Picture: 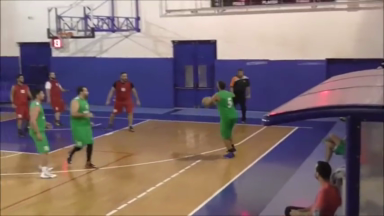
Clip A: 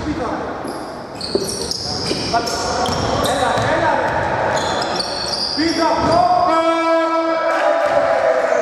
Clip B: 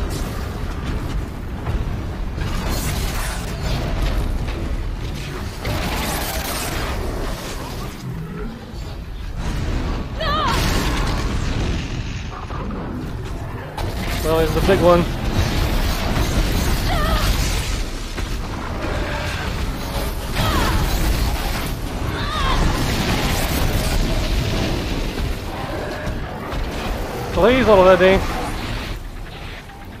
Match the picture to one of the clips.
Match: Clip A